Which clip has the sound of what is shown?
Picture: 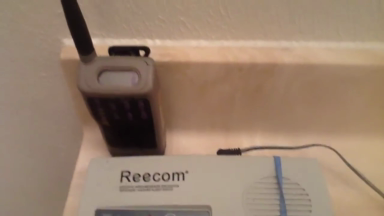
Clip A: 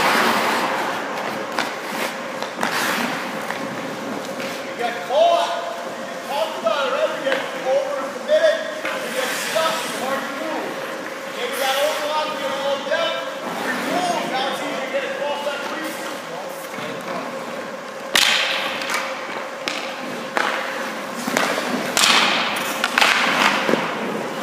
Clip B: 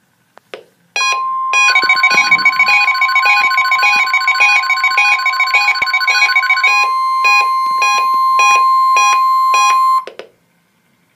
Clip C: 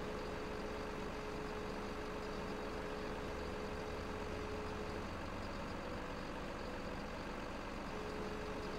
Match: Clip B